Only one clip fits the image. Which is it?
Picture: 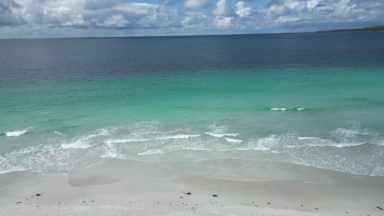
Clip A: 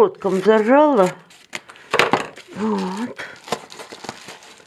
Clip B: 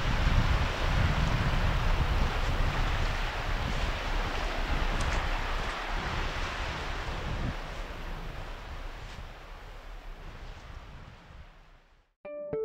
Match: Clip B